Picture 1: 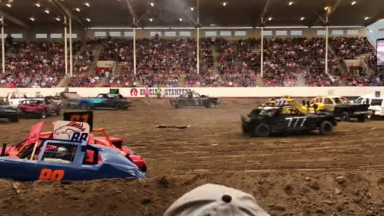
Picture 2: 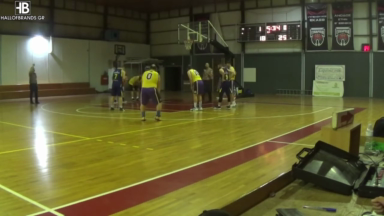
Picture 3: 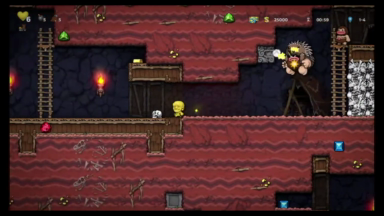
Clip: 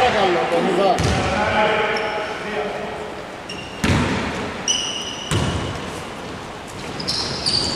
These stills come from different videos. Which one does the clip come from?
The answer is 2